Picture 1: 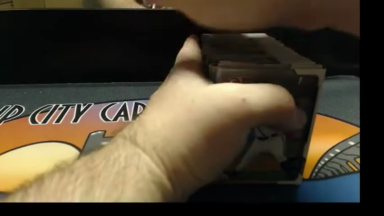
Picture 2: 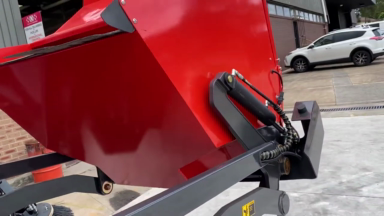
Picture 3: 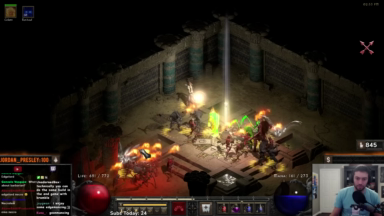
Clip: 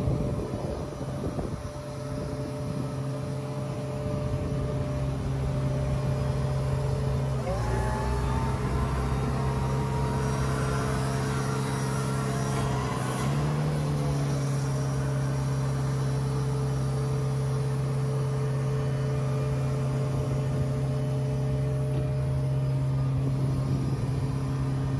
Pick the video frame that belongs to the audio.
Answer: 2